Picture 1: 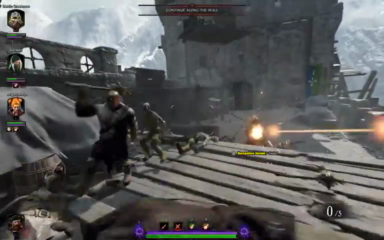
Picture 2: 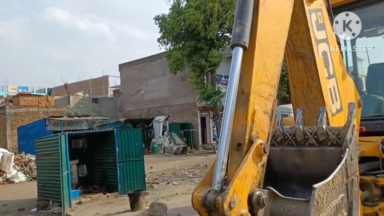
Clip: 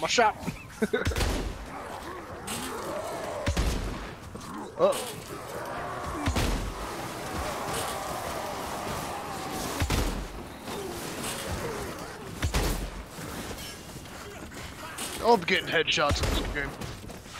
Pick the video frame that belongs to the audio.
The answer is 1